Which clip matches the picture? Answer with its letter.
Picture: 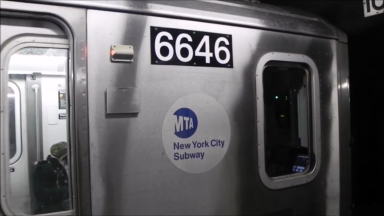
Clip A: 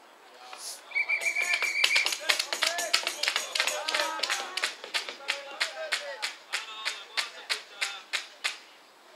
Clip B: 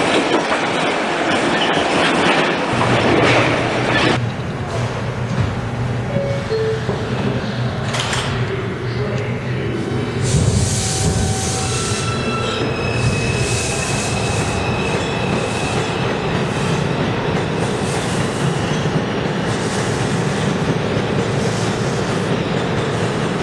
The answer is B